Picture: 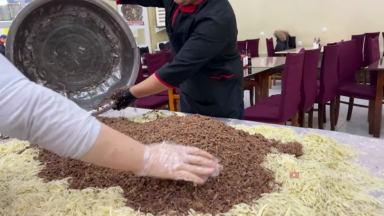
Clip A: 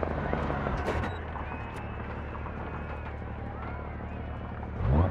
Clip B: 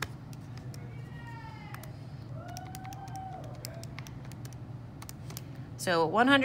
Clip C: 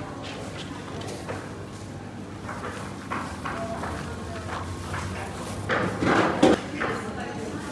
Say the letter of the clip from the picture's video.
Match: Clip C